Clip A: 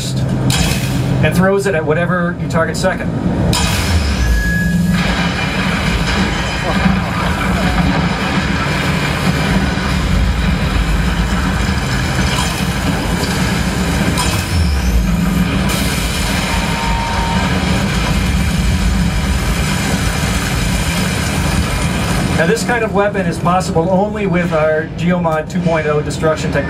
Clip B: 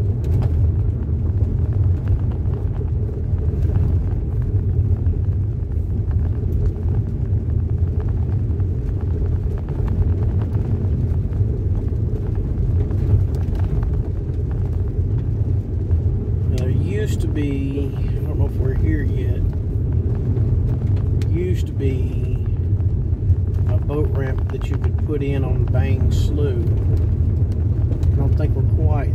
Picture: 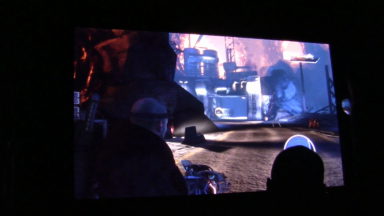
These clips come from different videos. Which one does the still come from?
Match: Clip A